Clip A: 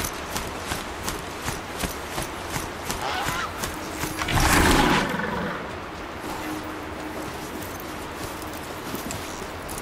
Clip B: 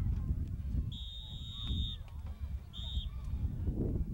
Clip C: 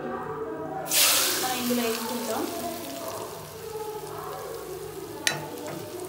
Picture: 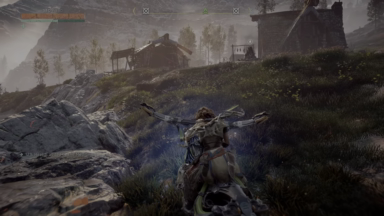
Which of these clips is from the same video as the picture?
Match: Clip A